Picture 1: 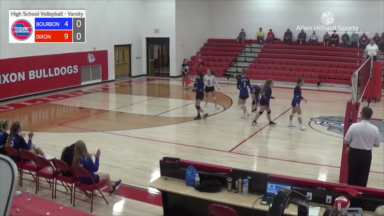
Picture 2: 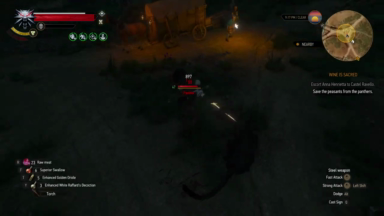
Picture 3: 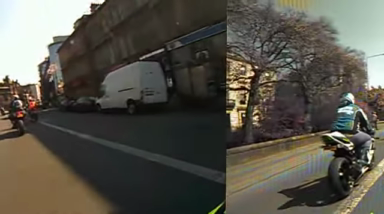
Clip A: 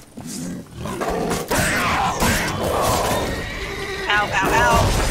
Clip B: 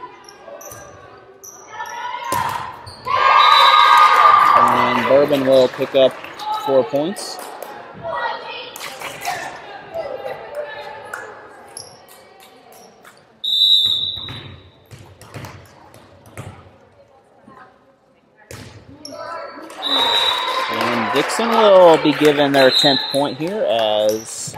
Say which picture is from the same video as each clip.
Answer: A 2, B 1